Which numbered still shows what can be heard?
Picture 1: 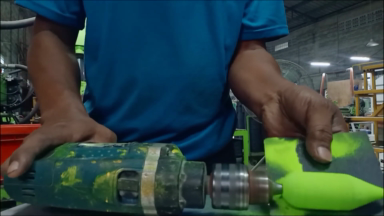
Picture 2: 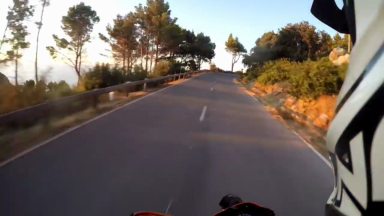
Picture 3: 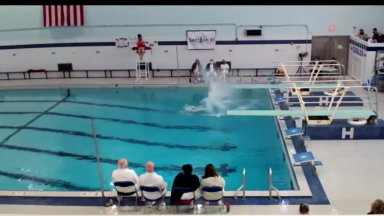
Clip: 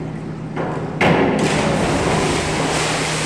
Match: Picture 3